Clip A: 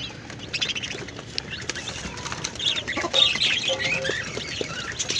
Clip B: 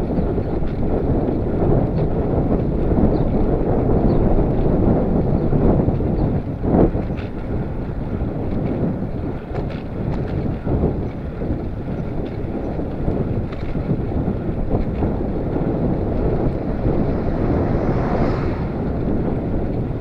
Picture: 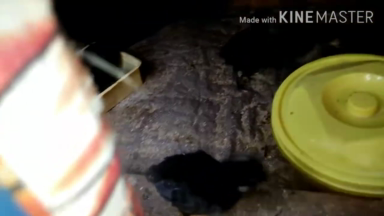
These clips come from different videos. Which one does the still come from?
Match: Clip A